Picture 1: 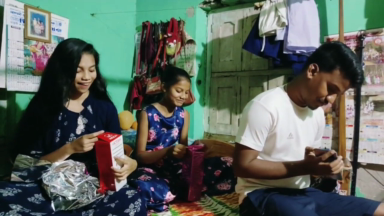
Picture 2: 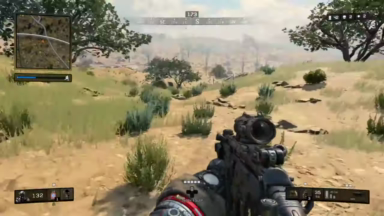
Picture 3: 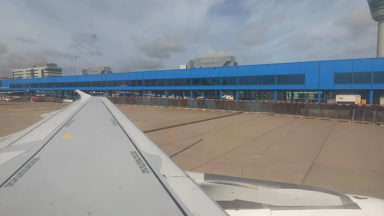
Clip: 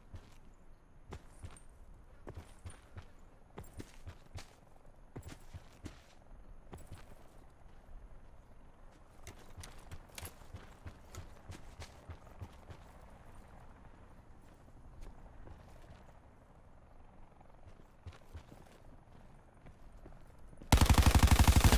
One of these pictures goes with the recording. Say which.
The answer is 2